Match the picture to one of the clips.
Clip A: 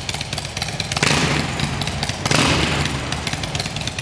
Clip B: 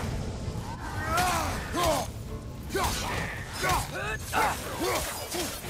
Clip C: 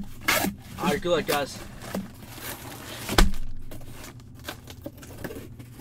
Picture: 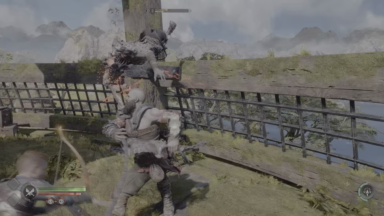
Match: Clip B